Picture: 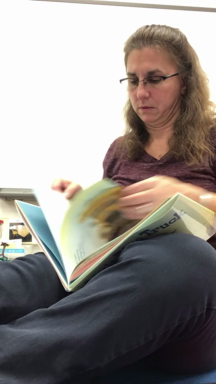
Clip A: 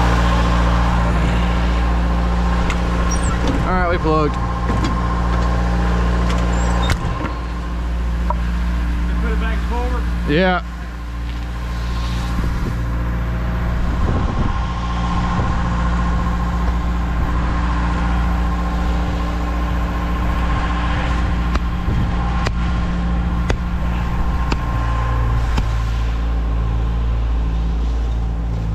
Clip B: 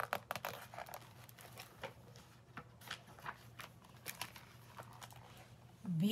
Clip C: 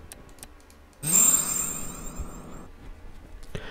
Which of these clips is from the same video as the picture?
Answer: B